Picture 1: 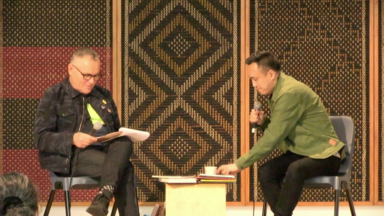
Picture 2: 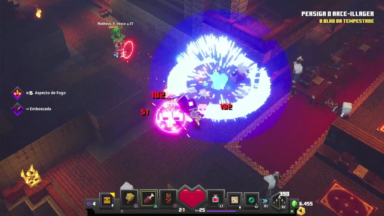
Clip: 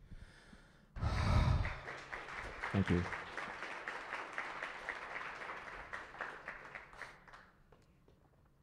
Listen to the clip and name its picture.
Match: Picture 1